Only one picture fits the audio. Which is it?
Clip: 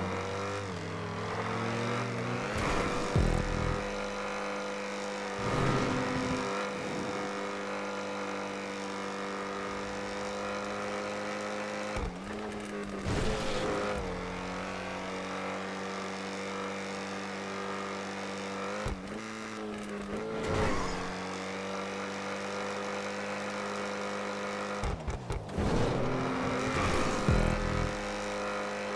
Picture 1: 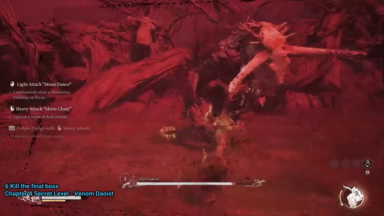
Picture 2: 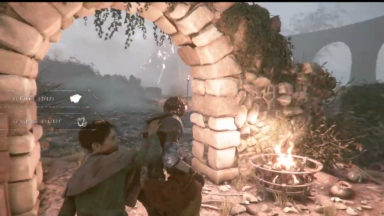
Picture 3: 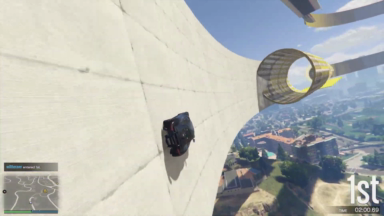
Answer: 3